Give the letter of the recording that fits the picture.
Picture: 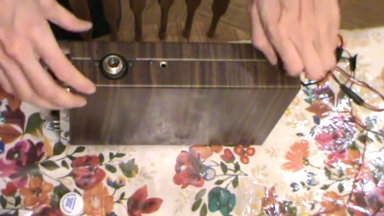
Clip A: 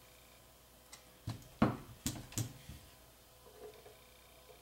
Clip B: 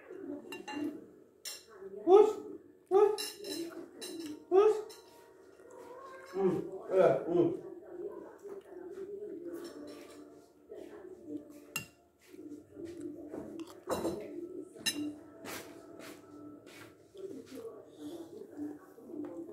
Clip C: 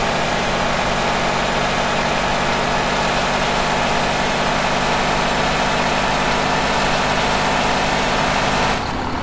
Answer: A